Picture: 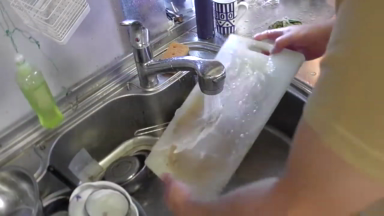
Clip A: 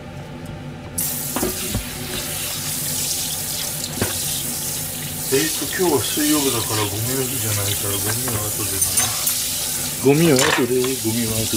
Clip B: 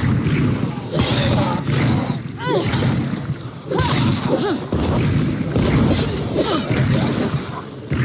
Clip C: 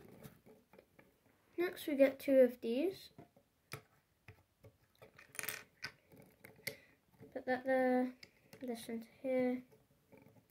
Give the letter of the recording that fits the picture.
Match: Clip A